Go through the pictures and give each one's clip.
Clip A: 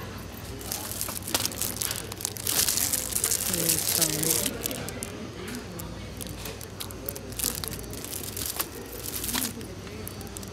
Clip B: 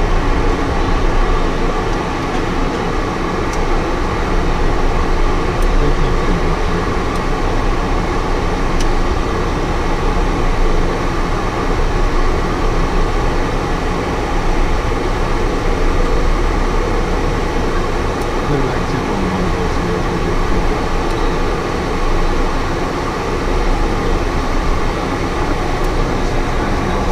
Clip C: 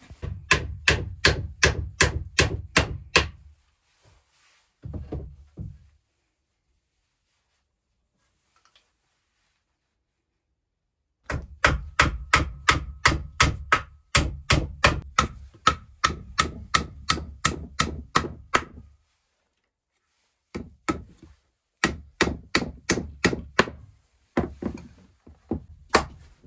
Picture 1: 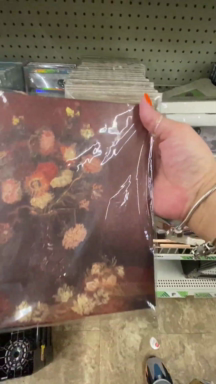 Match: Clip A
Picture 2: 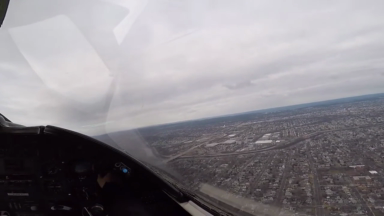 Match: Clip B